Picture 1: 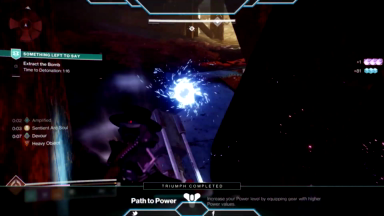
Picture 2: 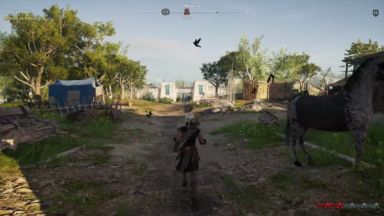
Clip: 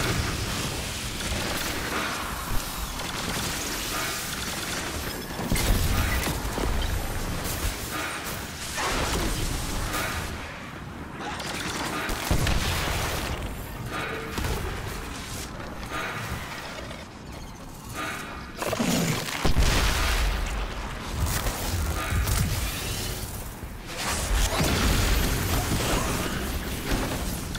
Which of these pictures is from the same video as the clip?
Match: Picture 1